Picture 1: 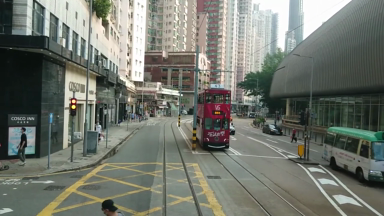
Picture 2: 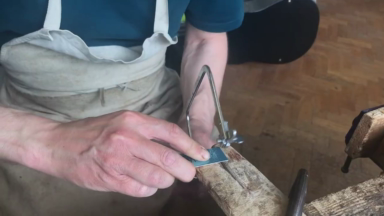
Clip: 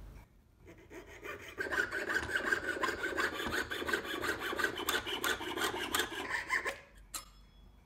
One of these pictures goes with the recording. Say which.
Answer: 2